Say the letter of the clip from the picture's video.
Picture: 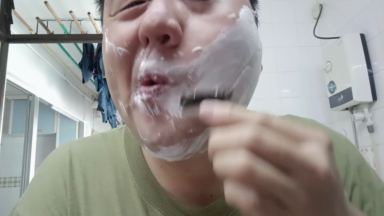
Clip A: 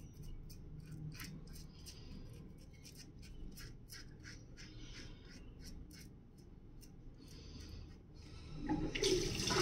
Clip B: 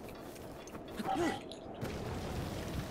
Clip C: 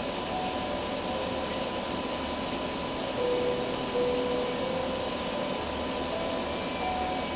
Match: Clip A